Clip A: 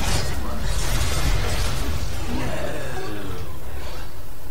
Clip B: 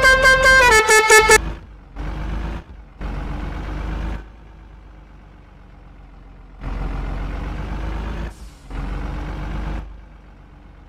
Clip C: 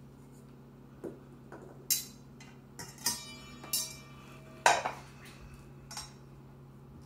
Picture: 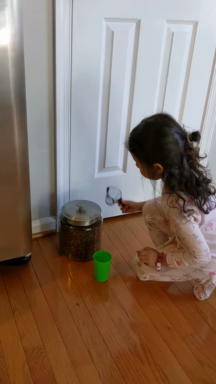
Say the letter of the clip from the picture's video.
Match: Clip C